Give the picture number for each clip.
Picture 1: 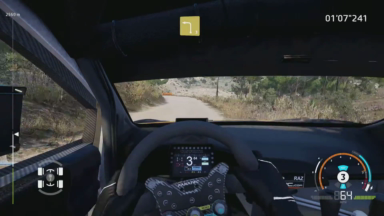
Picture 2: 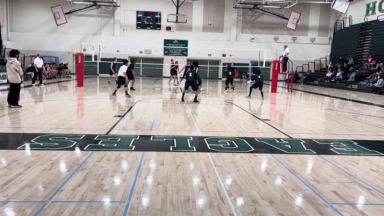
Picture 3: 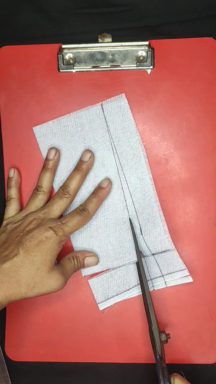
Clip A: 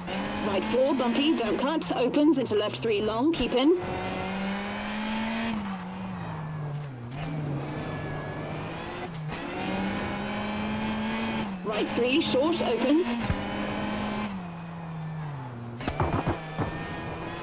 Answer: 1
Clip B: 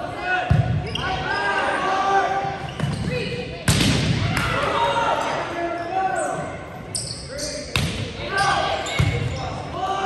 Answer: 2